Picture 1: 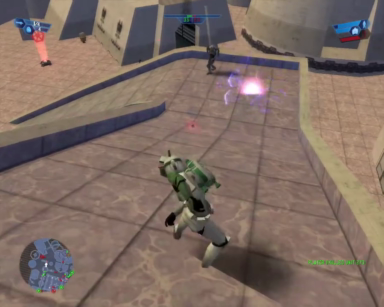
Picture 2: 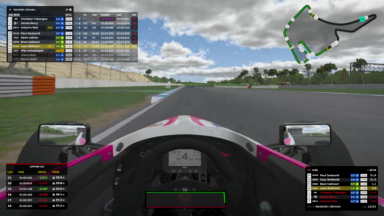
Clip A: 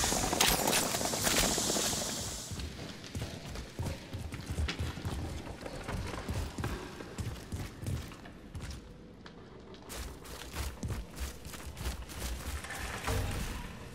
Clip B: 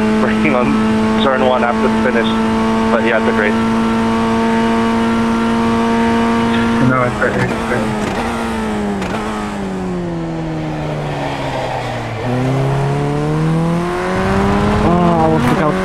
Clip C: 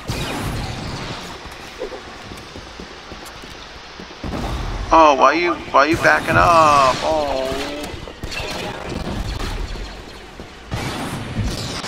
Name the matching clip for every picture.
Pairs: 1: C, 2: B